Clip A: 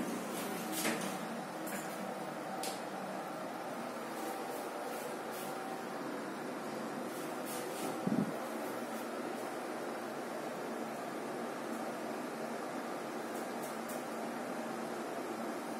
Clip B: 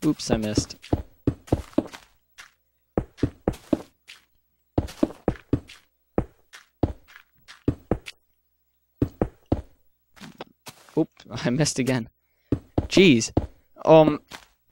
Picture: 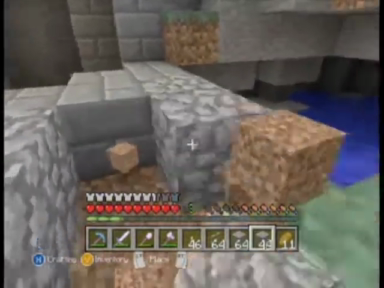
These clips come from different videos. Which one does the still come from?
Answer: B